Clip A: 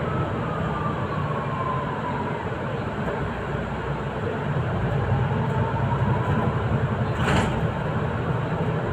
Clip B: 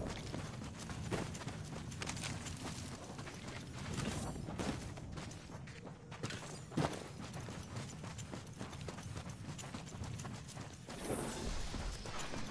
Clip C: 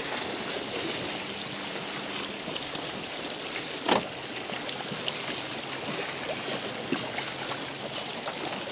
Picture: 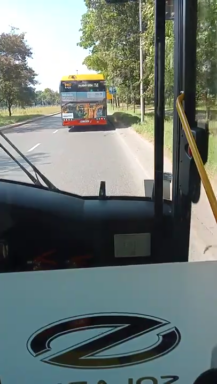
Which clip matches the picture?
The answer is A